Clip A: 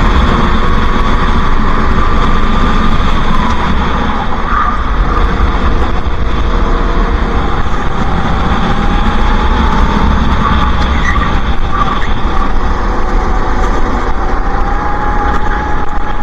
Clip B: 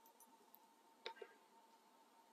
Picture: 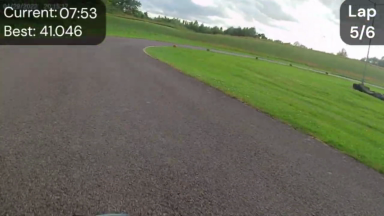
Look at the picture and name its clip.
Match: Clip A